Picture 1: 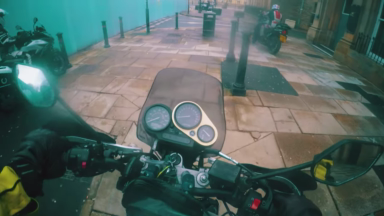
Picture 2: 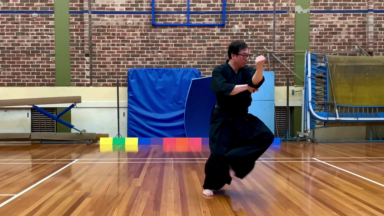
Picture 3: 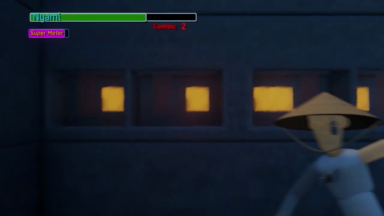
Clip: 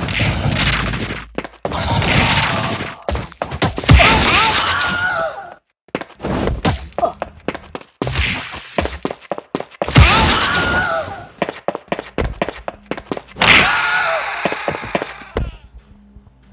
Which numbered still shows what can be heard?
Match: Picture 3